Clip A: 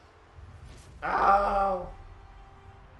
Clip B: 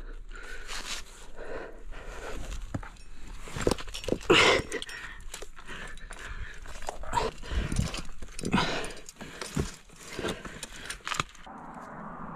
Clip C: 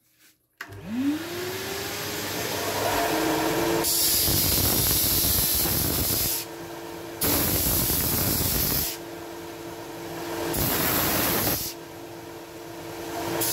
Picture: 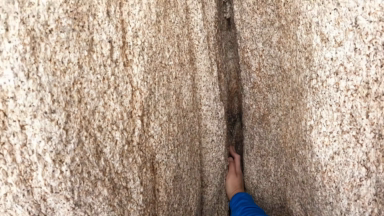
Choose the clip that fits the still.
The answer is B